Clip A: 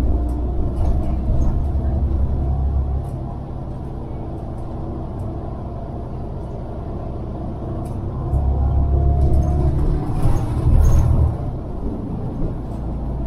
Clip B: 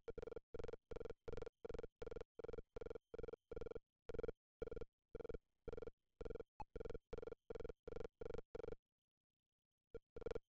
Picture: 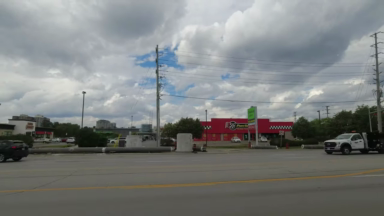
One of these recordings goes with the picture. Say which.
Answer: A